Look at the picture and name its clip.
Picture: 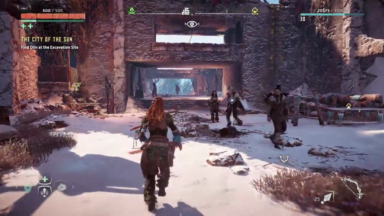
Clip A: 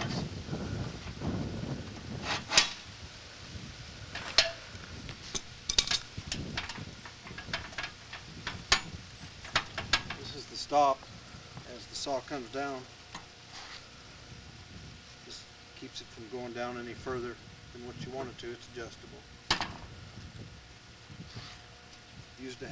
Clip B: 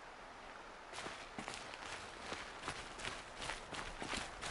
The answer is B